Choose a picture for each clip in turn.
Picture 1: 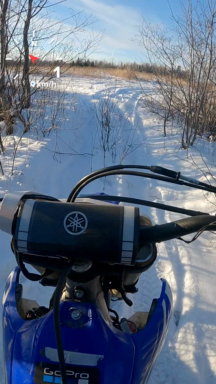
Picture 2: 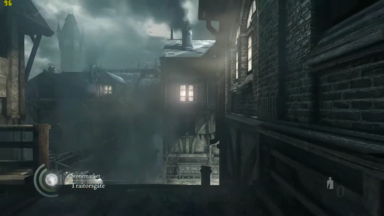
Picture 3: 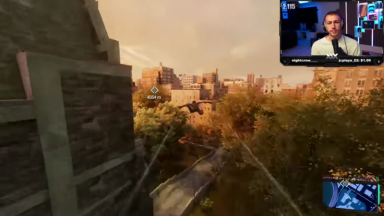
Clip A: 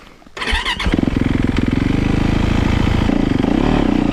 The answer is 1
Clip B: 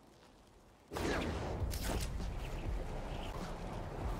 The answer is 3